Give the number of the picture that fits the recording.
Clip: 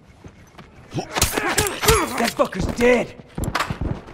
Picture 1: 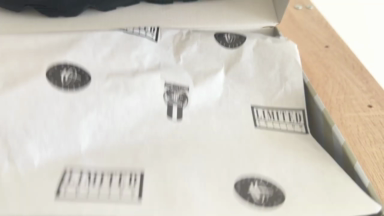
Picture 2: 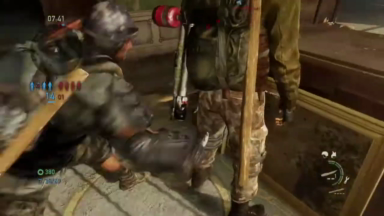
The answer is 2